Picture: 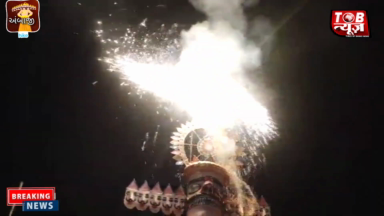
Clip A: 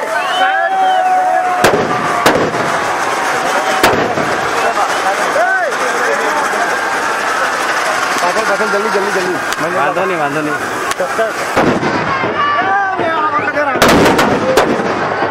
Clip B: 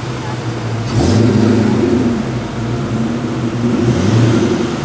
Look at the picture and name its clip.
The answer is A